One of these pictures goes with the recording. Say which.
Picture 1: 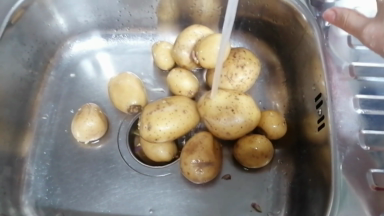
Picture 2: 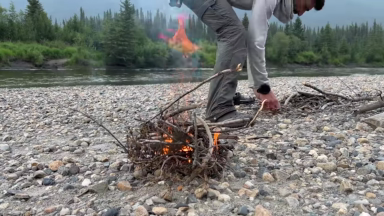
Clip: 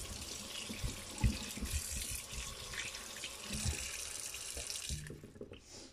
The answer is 1